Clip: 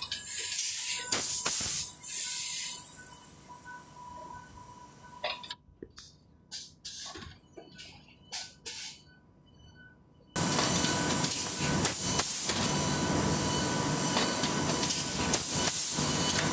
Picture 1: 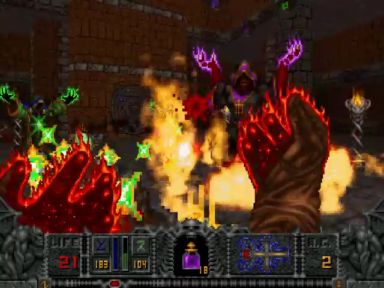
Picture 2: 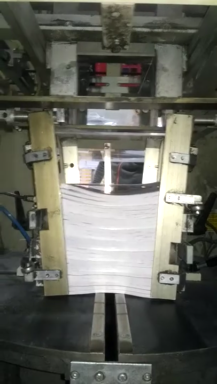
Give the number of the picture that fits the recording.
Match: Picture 2